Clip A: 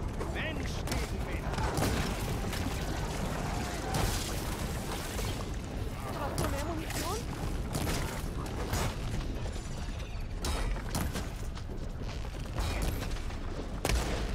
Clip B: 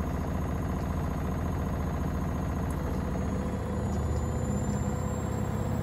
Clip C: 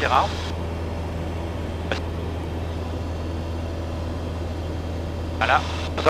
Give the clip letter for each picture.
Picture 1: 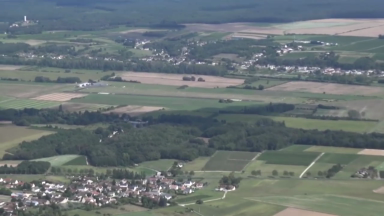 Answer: C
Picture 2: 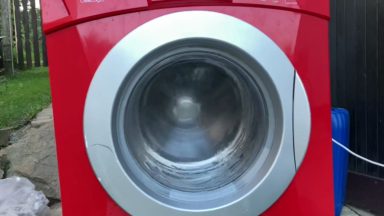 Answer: B